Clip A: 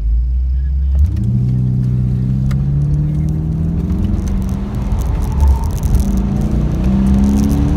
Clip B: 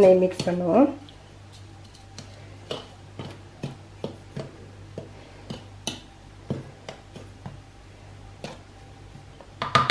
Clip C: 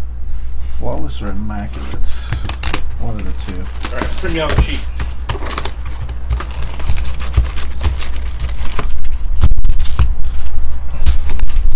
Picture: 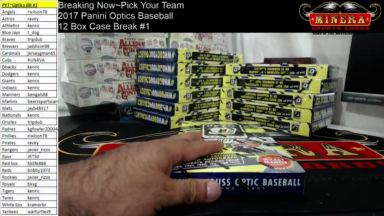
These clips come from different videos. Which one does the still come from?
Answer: C